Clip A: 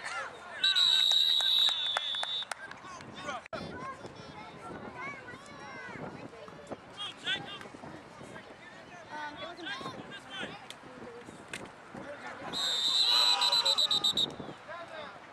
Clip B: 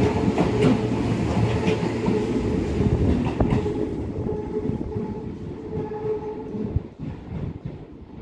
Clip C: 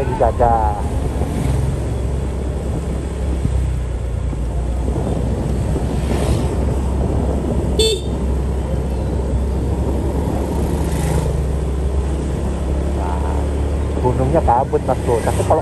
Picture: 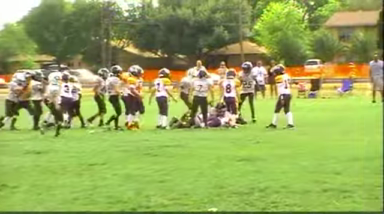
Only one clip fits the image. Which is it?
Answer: A